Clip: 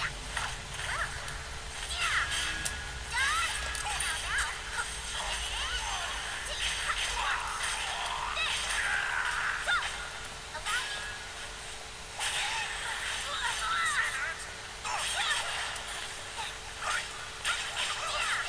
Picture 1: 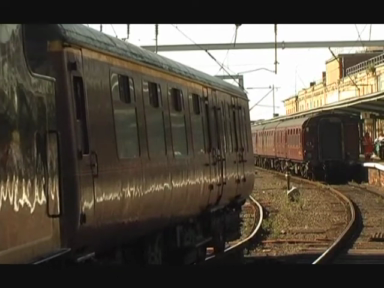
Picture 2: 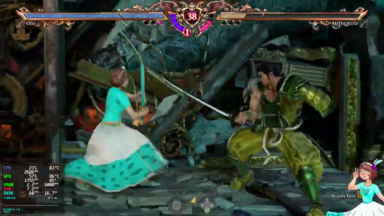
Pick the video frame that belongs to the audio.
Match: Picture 2